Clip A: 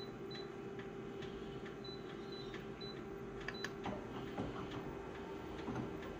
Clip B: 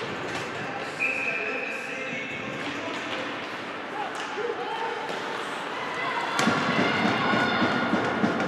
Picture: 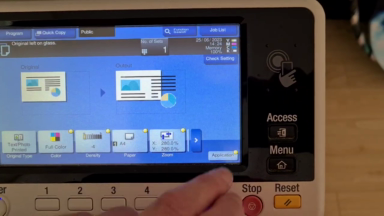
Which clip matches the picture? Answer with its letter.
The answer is A